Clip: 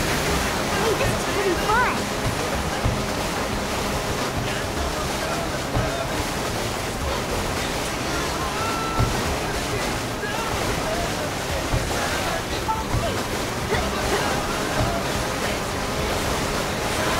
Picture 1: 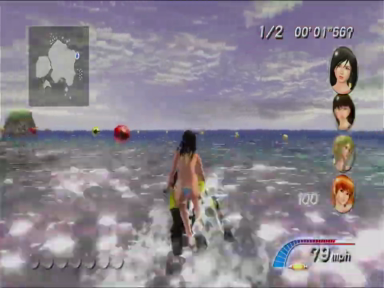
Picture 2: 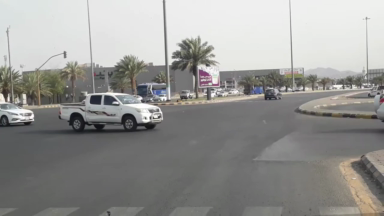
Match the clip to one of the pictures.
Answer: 1